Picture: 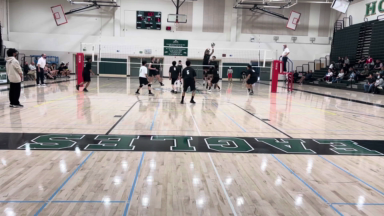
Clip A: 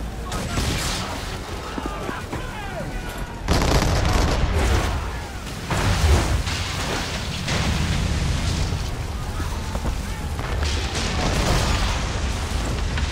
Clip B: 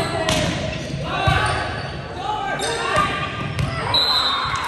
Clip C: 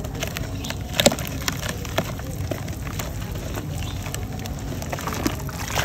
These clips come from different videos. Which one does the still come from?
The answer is B